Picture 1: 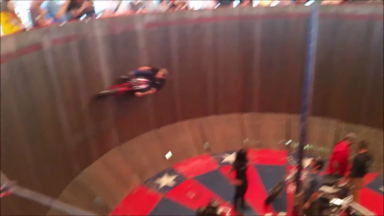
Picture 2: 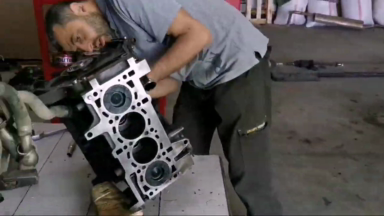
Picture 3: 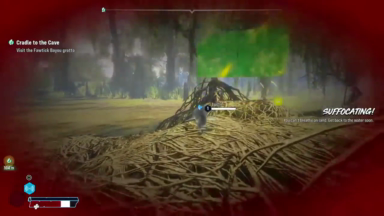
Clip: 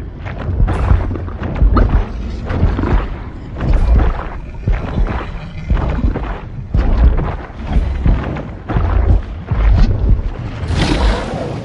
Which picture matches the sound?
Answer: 3